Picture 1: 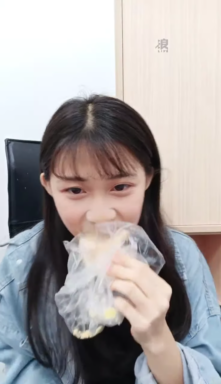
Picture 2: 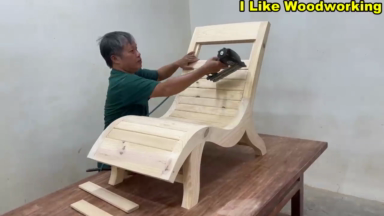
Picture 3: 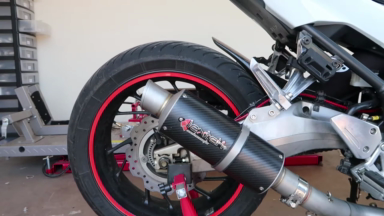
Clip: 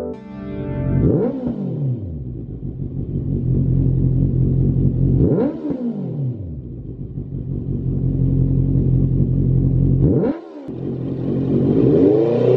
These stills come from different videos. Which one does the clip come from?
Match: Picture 3